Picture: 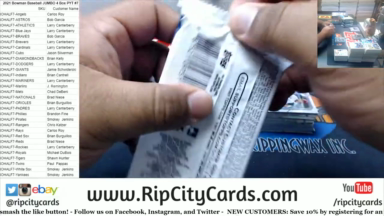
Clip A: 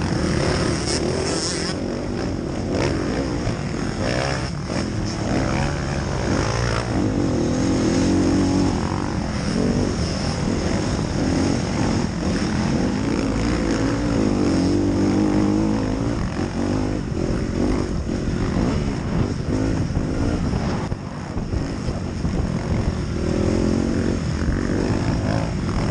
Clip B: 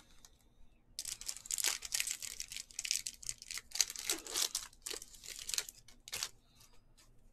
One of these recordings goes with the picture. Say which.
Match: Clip B